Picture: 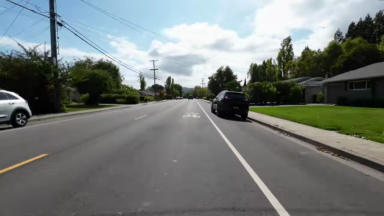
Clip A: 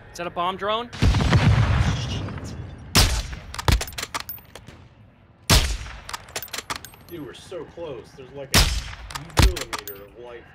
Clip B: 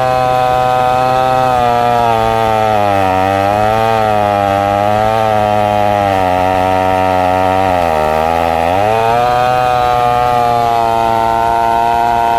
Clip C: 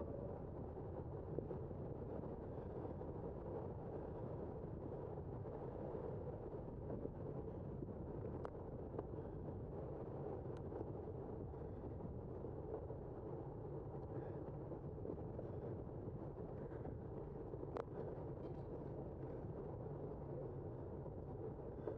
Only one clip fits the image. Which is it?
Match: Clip C